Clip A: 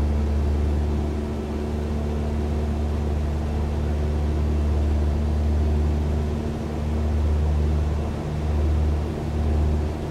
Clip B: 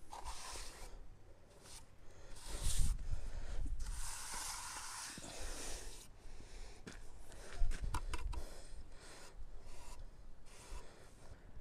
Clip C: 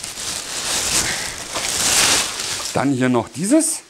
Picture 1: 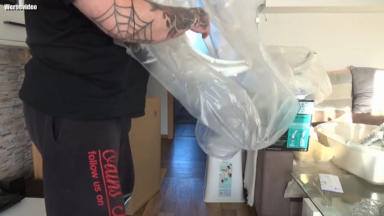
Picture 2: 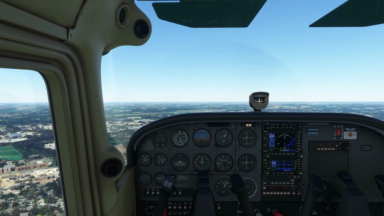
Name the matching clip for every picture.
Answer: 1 C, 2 A